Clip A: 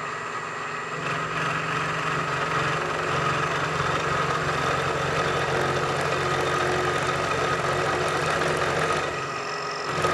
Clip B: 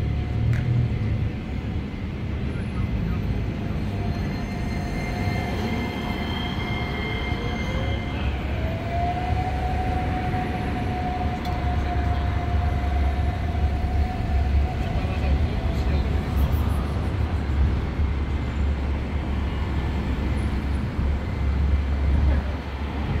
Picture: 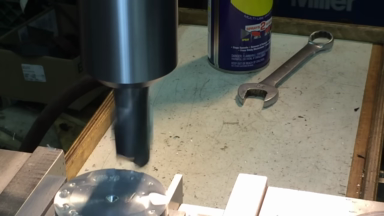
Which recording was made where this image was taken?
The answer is A